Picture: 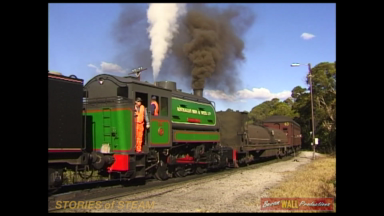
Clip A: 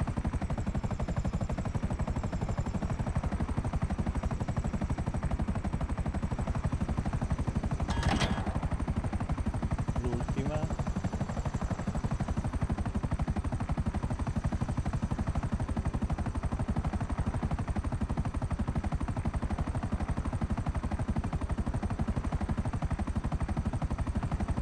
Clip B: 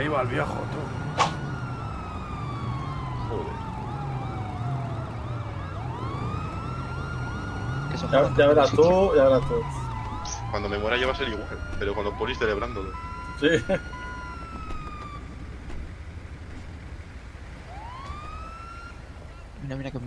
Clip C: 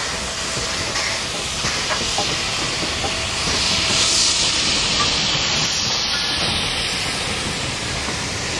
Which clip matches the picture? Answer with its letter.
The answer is C